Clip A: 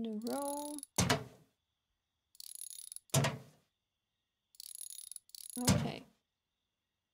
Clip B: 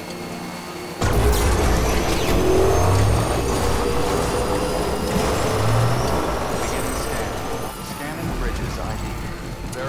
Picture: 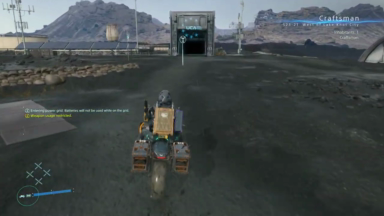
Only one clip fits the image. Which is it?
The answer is B